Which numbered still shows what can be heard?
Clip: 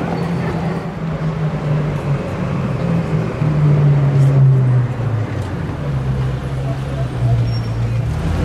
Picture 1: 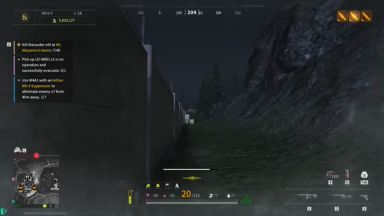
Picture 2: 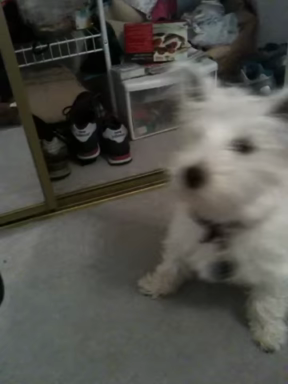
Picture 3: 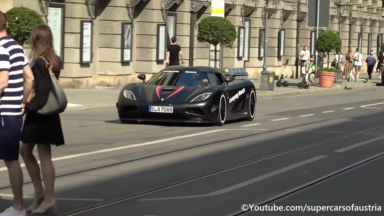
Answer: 3